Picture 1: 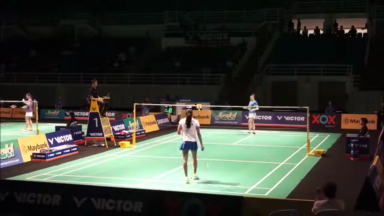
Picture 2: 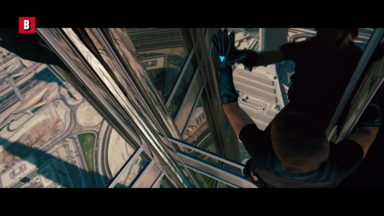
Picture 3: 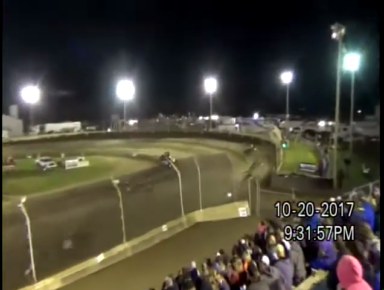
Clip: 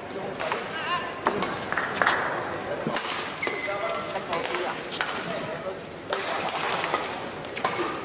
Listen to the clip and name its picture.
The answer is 1